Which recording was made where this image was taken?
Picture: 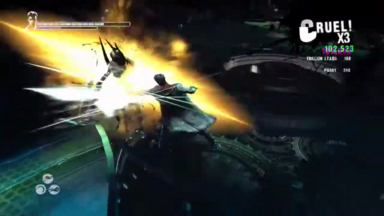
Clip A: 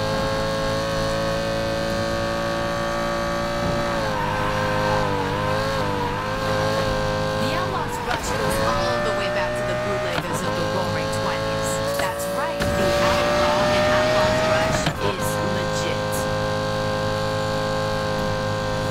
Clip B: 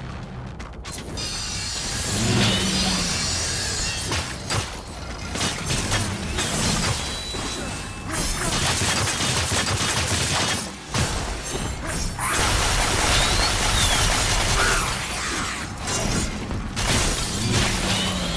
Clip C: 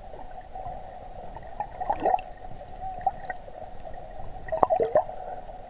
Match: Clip B